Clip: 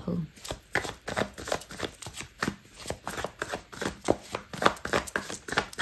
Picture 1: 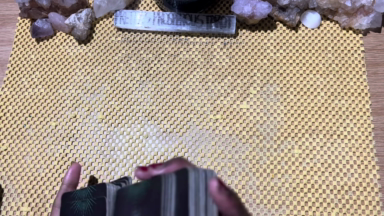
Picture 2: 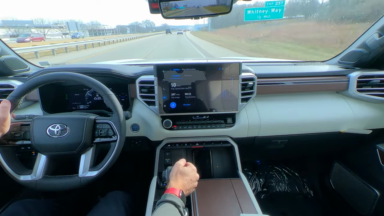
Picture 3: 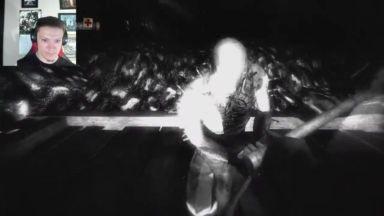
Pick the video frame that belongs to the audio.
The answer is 1